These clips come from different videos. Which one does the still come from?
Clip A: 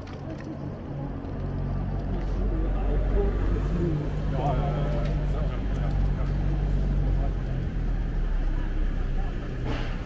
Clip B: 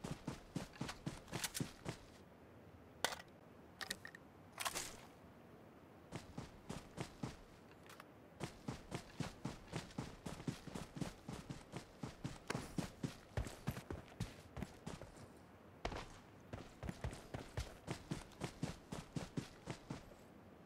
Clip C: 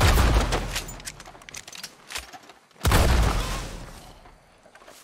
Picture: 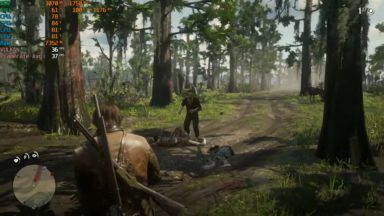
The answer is C